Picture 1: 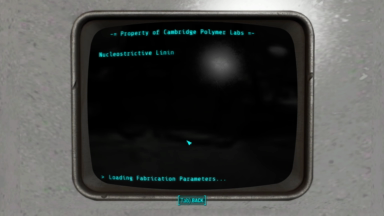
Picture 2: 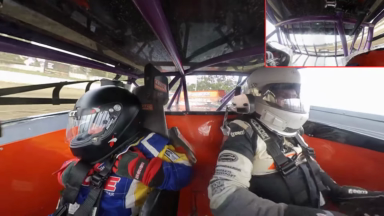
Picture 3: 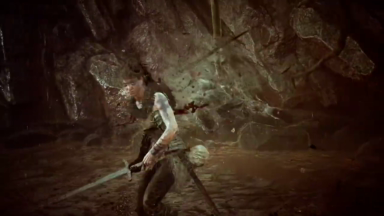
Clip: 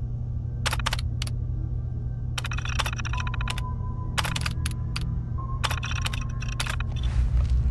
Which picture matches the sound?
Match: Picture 1